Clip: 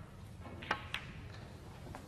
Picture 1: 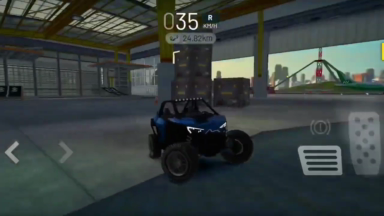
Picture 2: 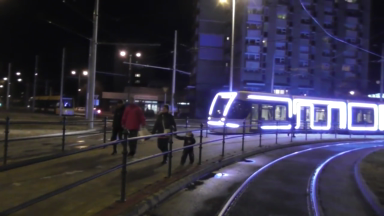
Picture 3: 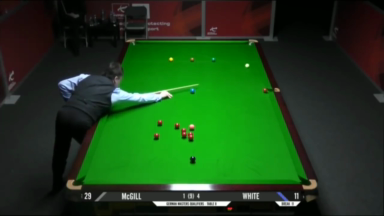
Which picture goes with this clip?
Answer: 3